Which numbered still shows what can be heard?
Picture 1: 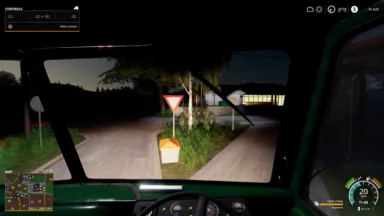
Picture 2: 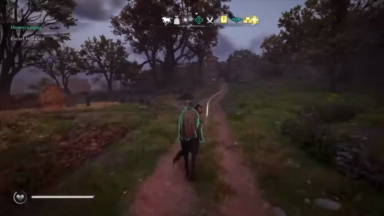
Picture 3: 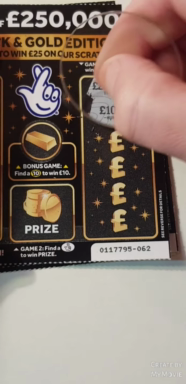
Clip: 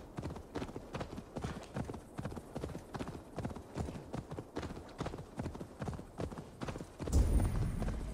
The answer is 2